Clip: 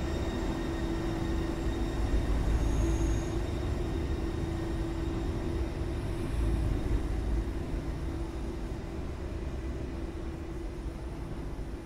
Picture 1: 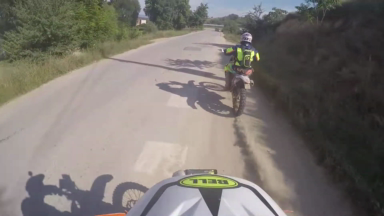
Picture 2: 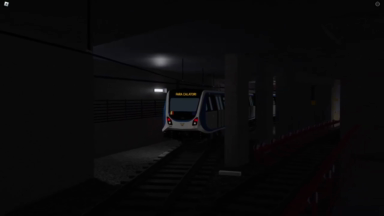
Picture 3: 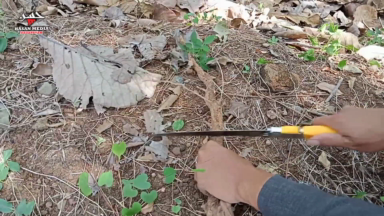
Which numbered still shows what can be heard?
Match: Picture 2